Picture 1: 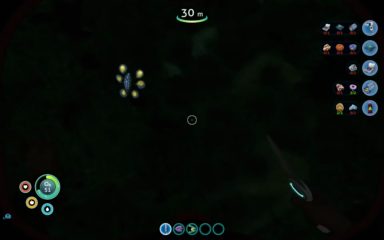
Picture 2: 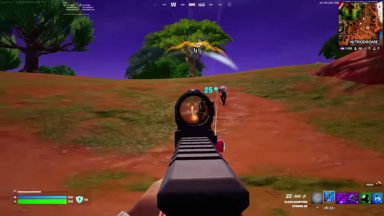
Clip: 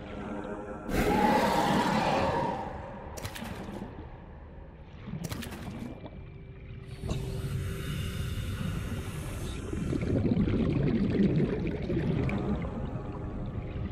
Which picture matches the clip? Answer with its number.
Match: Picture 1